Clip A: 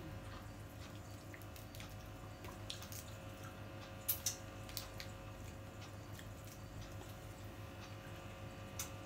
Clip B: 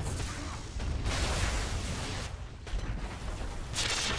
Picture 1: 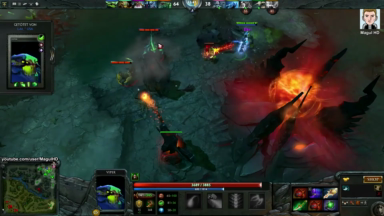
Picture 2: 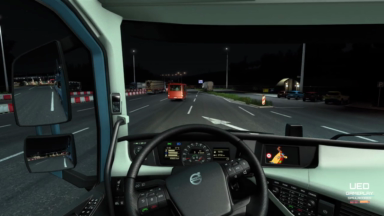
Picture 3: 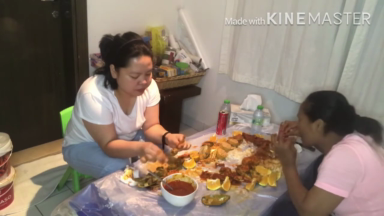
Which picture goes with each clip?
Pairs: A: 3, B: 1